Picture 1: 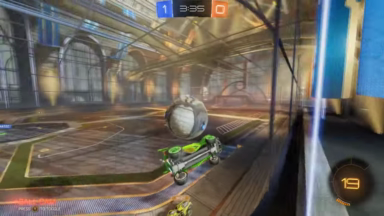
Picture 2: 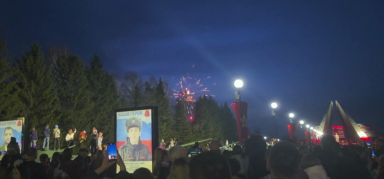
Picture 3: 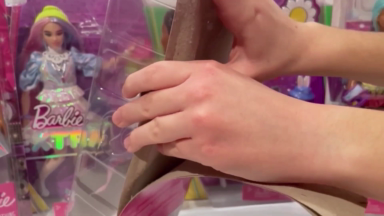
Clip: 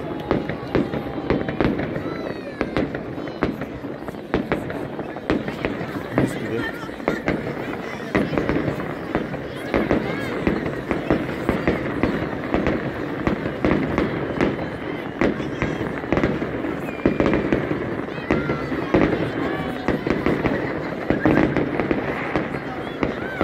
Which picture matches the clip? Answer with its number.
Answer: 2